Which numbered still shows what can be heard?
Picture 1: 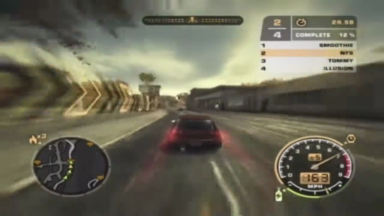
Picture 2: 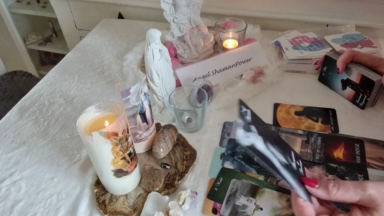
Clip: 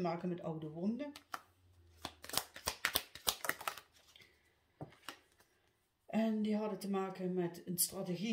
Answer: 2